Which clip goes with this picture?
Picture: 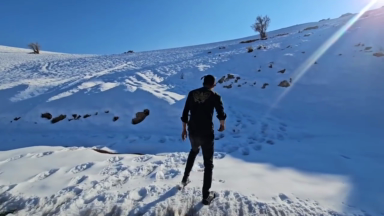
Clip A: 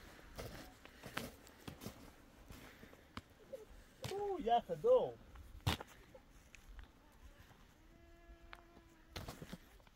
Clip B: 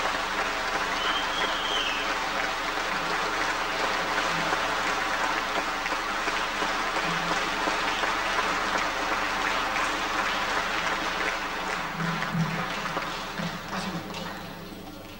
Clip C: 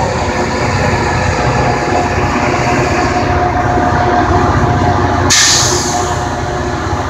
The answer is A